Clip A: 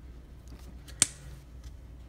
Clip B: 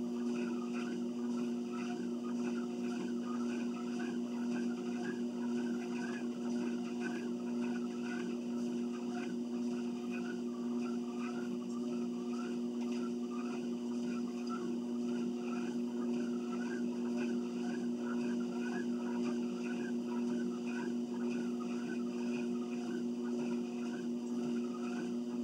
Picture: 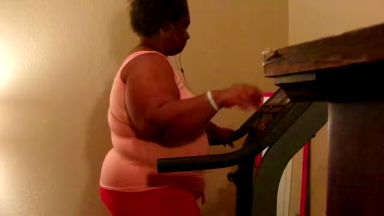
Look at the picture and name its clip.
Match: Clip B